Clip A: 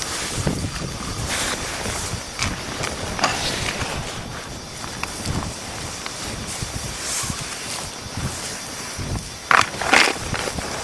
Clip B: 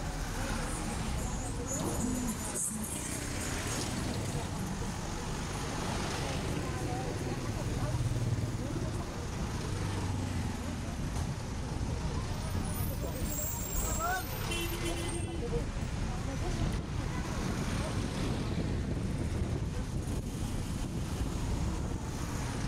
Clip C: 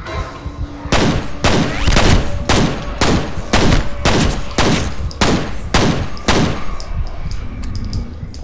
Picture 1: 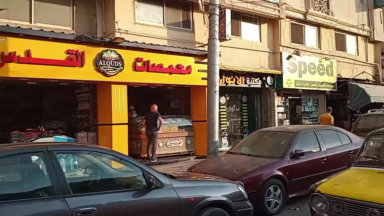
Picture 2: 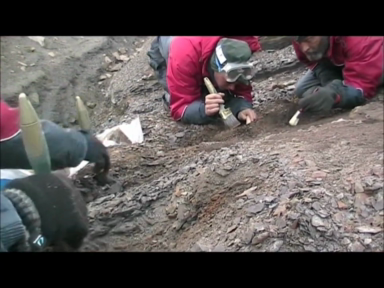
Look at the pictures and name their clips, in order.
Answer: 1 B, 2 A